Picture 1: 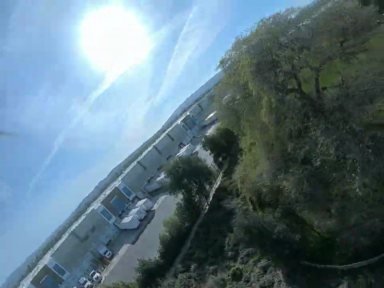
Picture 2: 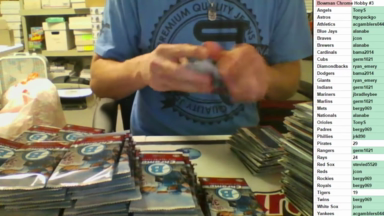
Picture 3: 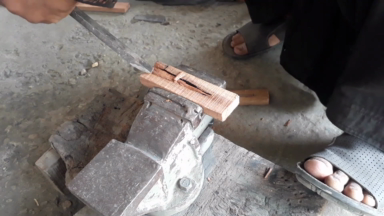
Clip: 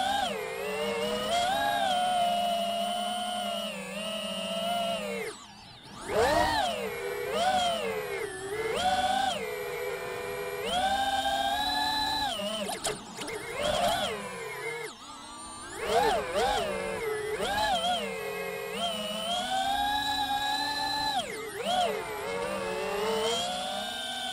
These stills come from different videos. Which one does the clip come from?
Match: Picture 1